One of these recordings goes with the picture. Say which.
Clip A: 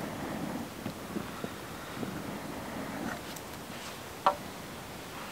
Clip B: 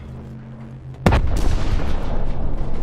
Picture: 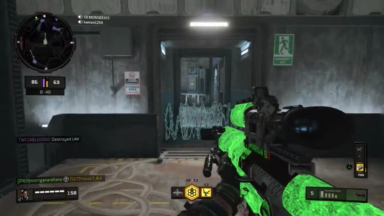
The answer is B